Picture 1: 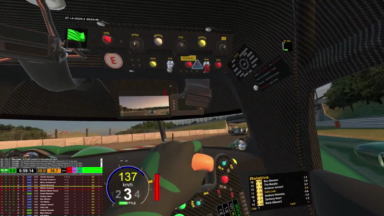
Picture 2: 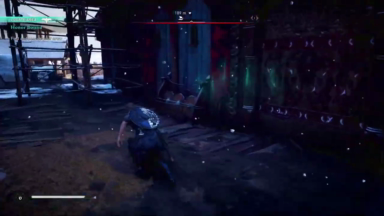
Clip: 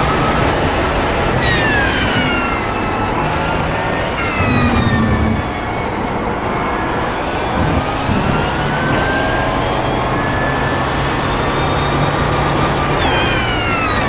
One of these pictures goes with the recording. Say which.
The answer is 1